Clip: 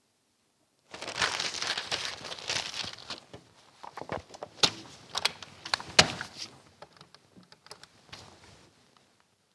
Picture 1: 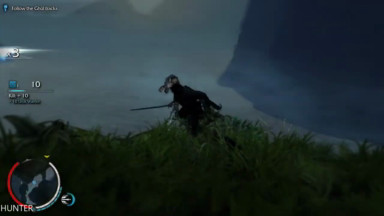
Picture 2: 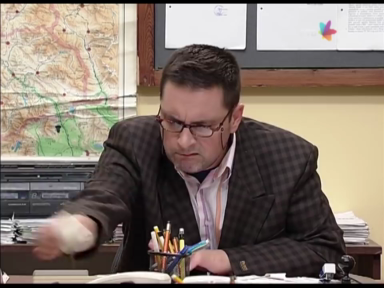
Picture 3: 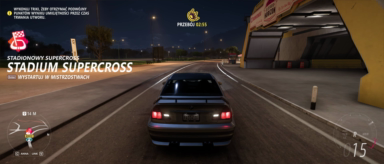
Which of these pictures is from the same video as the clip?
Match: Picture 2